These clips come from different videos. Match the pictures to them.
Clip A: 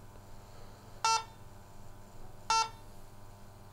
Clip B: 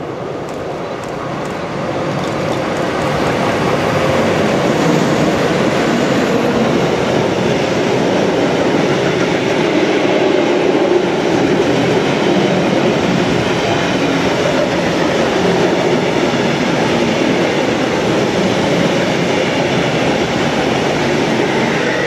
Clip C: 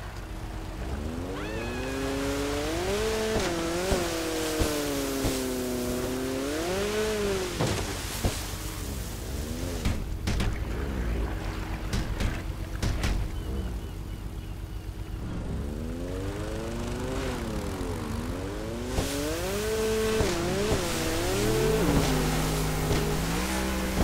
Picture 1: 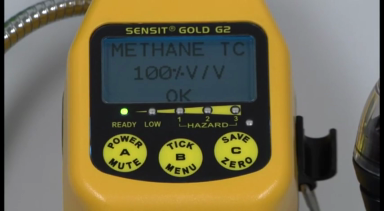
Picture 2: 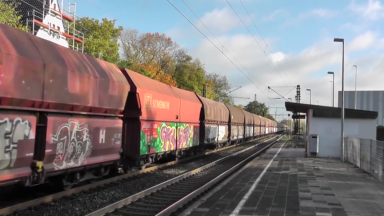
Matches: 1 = A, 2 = B